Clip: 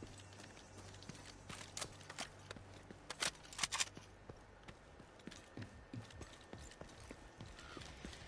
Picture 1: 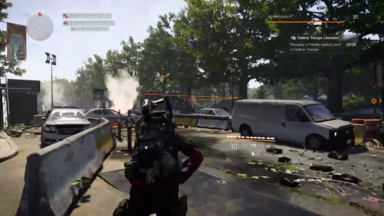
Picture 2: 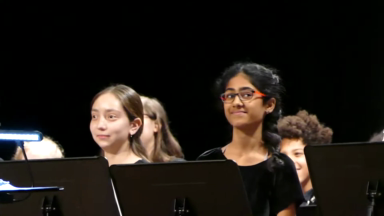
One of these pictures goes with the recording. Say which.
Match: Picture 1